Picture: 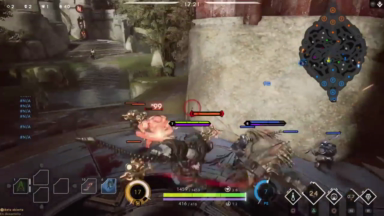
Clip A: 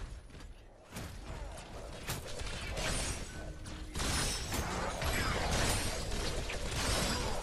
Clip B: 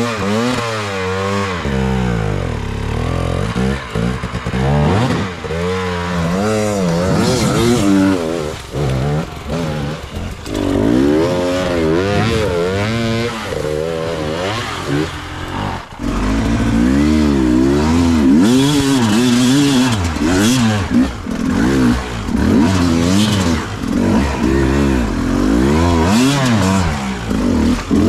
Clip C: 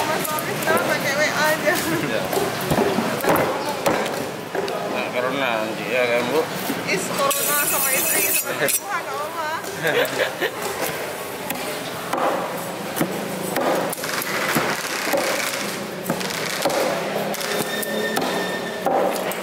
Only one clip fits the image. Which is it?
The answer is A